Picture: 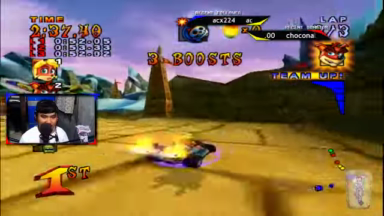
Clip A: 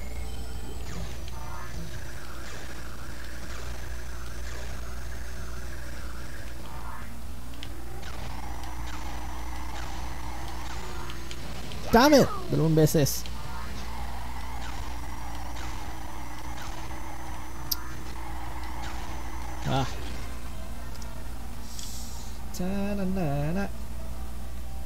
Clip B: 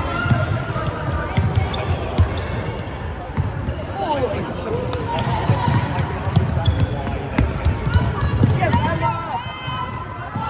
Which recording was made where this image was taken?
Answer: A